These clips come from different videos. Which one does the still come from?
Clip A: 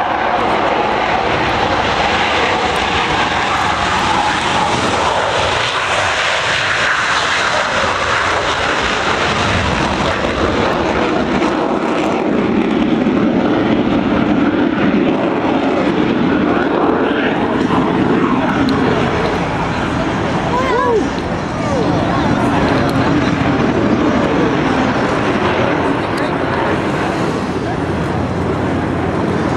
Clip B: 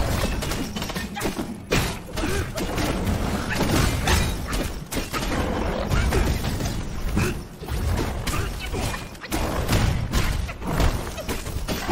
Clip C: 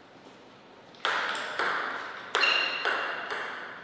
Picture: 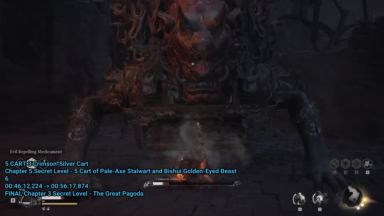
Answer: B